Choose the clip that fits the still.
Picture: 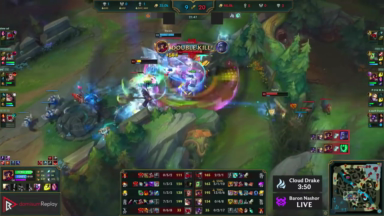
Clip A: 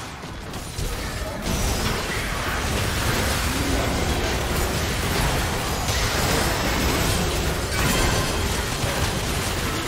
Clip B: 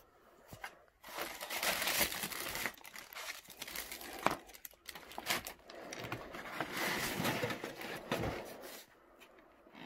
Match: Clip A